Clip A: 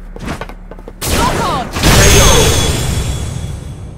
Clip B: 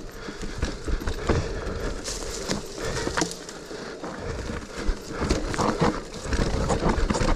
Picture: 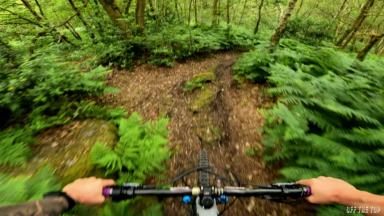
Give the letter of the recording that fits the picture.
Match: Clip B